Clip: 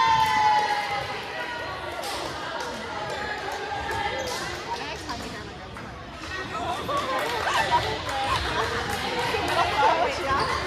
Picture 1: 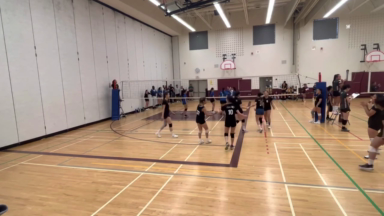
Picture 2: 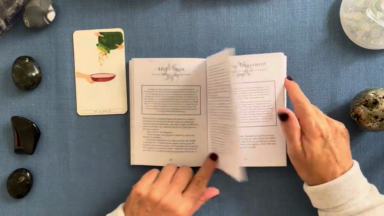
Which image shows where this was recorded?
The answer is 1